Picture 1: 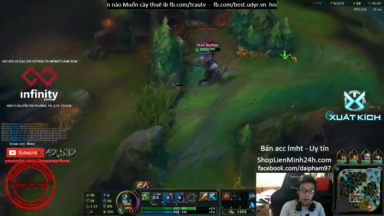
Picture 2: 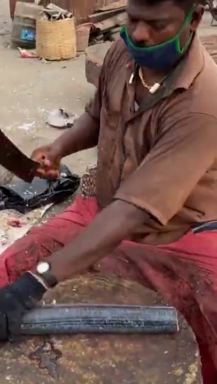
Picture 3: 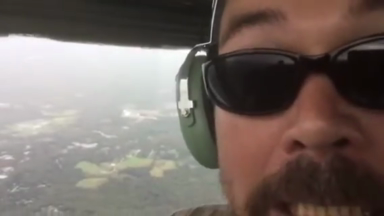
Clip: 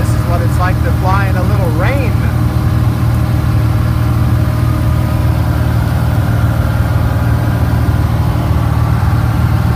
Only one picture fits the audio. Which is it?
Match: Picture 3